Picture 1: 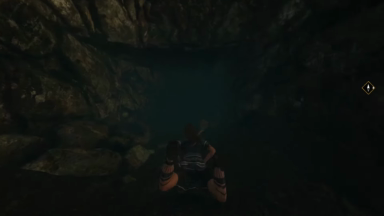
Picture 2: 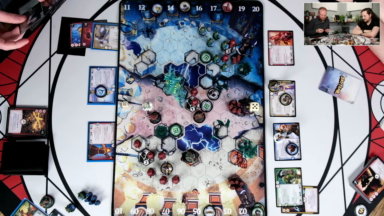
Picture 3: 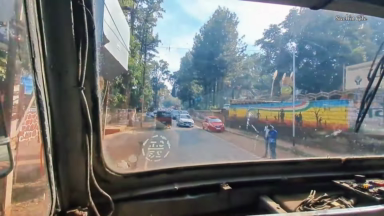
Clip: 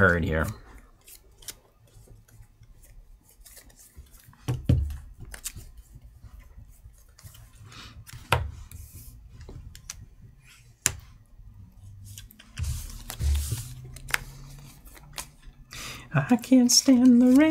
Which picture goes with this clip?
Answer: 2